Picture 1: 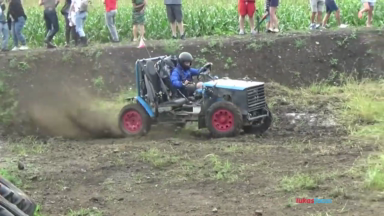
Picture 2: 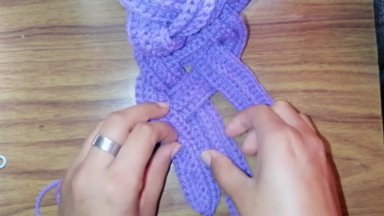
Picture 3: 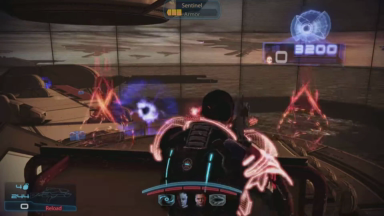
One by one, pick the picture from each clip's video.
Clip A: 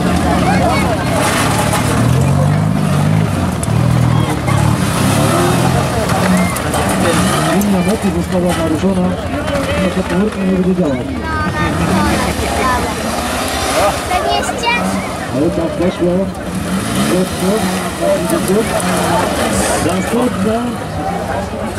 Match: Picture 1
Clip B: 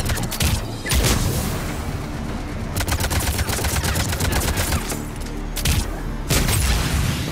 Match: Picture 3